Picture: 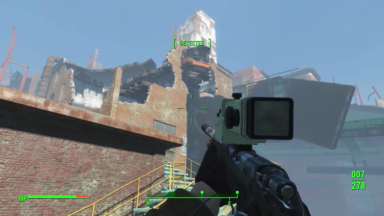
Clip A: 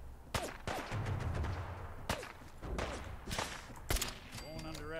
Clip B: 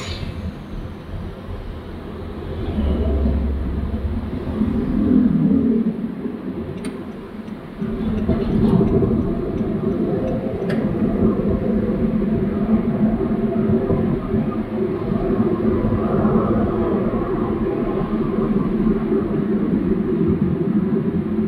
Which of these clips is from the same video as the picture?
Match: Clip A